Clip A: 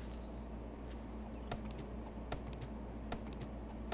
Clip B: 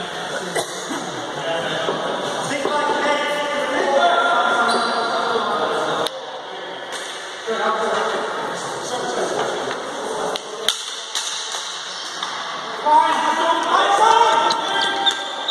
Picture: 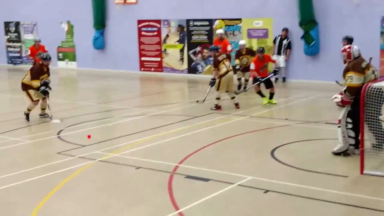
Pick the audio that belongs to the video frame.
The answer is B